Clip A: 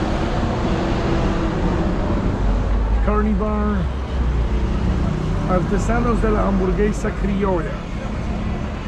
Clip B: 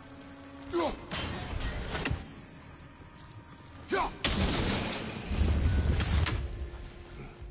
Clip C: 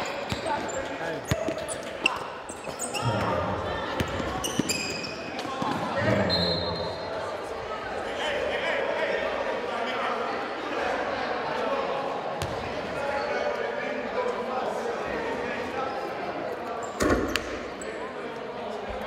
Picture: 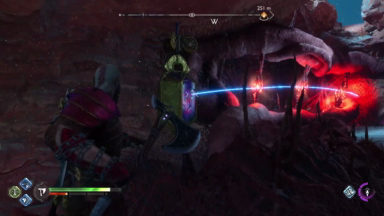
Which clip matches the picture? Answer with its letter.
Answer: B